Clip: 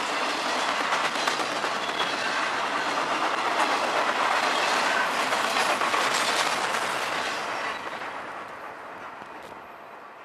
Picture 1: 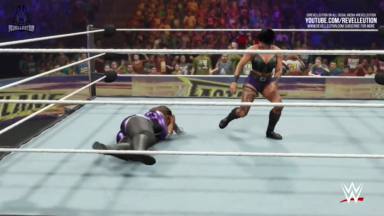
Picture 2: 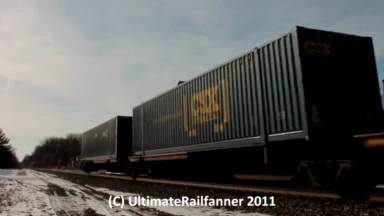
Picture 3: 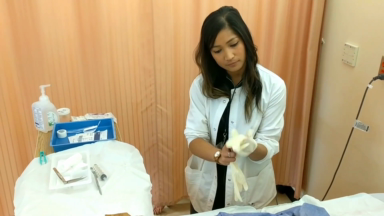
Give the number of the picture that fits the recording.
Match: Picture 2